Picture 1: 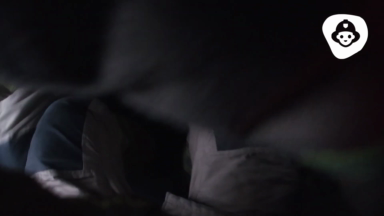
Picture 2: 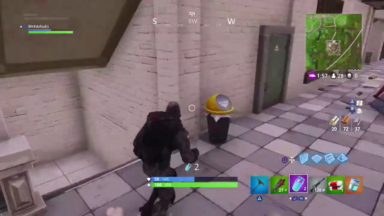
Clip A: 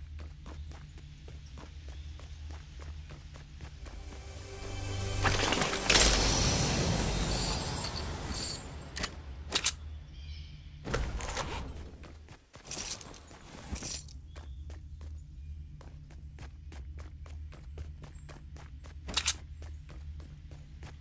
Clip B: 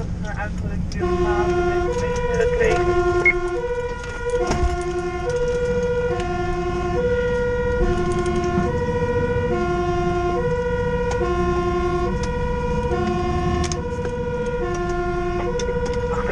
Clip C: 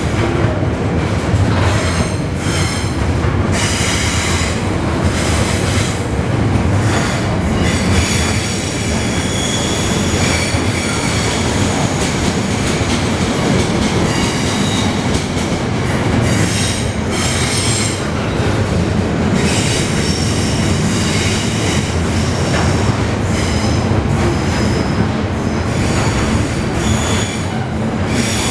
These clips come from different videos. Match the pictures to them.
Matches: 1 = B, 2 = A